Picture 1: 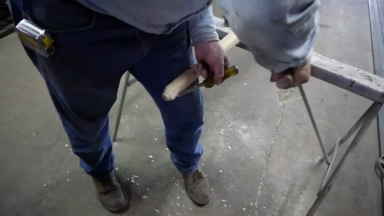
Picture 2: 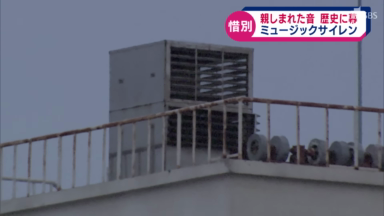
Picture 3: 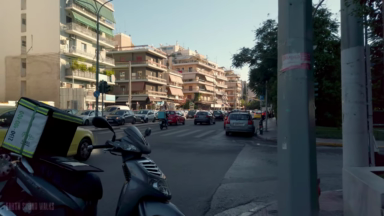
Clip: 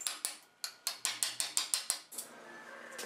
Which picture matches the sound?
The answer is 1